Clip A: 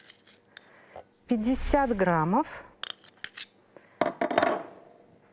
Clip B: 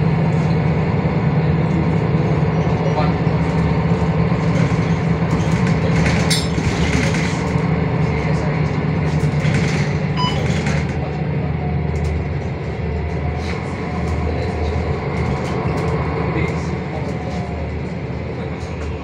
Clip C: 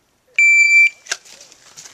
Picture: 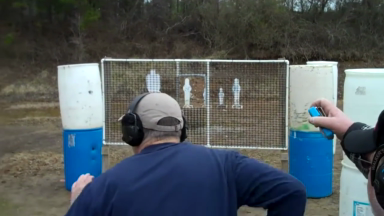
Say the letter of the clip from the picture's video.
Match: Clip C